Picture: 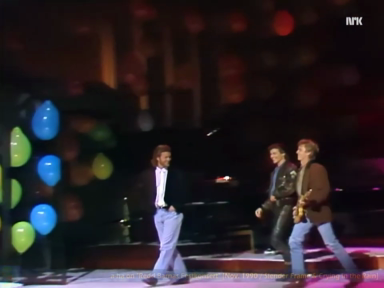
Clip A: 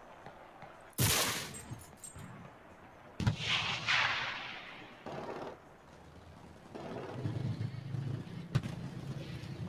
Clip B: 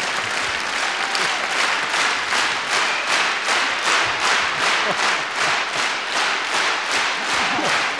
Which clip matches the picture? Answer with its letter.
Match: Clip B